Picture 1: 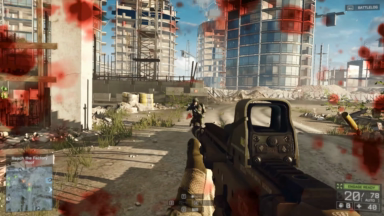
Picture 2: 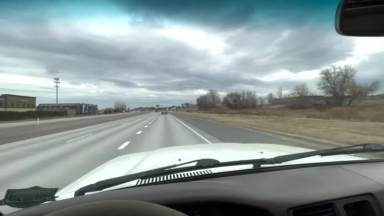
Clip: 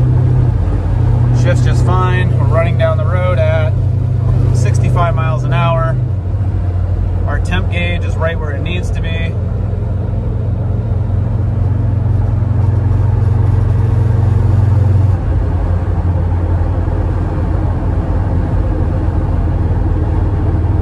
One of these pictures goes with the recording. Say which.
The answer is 2